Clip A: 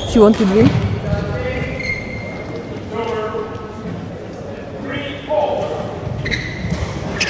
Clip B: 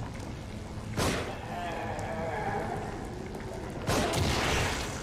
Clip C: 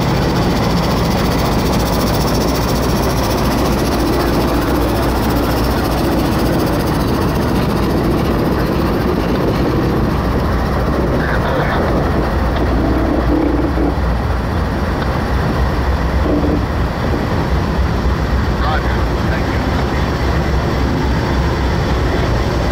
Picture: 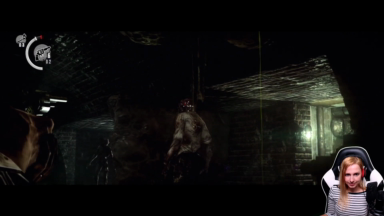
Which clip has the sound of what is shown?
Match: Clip B